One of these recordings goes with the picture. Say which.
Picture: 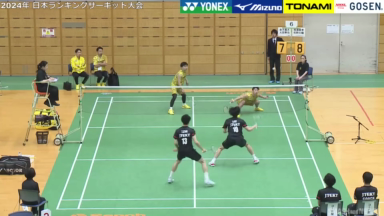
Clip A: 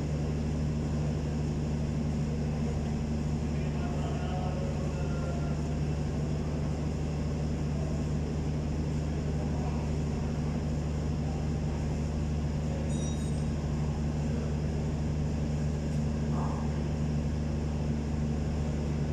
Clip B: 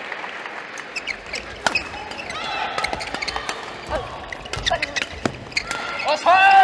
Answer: B